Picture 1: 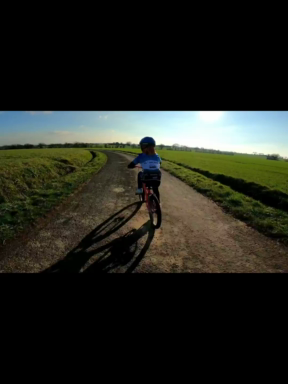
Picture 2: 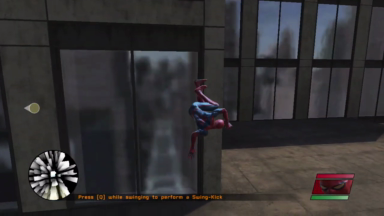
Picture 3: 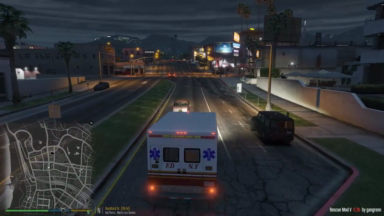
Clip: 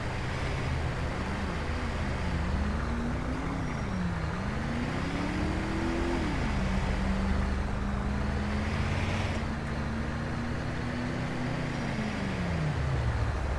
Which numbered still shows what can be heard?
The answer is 3